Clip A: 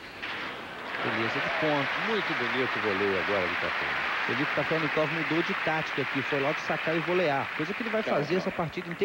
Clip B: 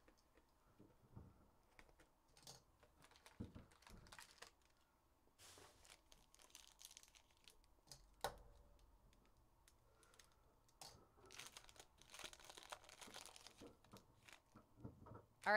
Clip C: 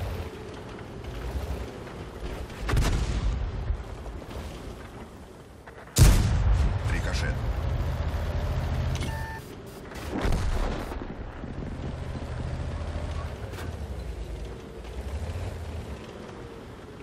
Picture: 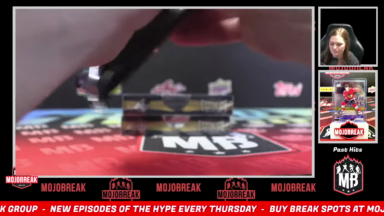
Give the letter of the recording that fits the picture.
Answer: B